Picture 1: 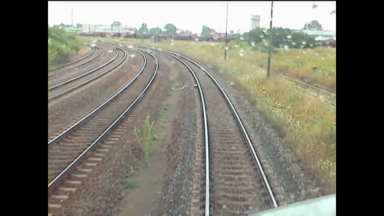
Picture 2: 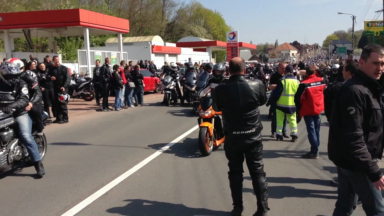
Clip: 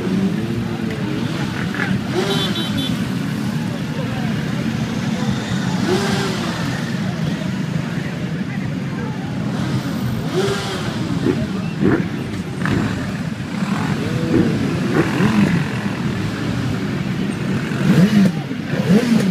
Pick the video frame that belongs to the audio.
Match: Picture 2